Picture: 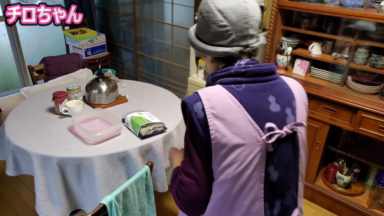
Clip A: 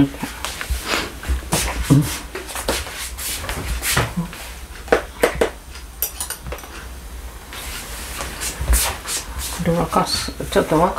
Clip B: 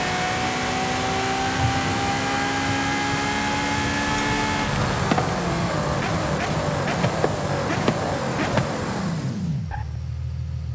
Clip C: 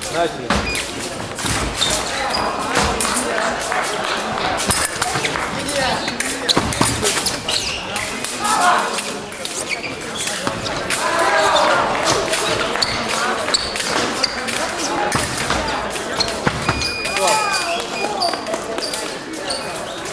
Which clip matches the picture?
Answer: A